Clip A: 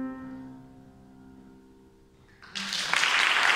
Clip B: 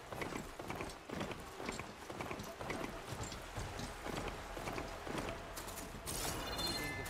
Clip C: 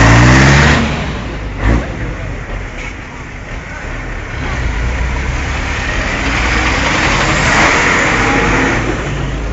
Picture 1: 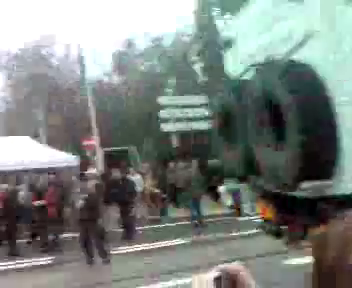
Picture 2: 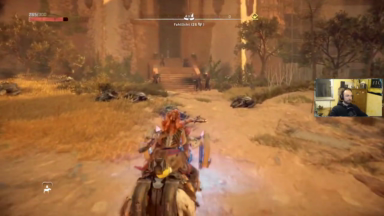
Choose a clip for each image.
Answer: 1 C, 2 B